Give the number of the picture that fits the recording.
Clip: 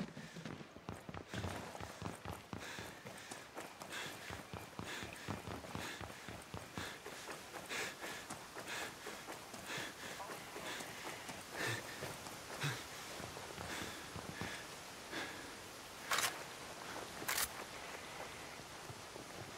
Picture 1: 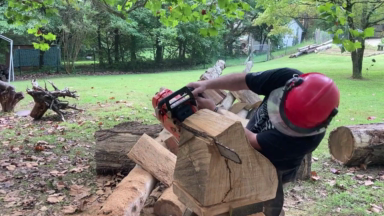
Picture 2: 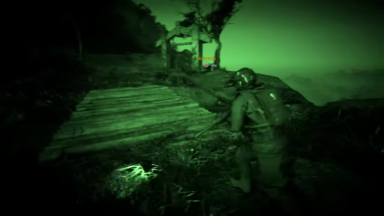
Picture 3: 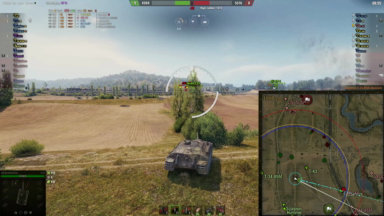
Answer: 2